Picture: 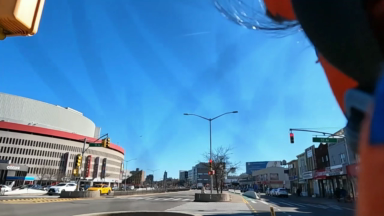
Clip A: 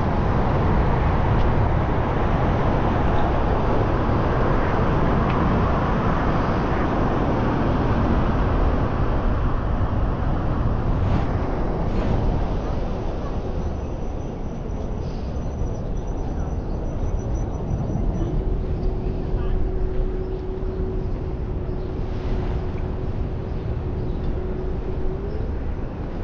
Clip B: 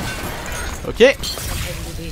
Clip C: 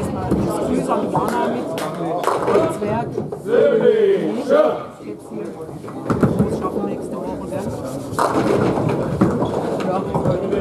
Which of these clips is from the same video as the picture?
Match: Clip A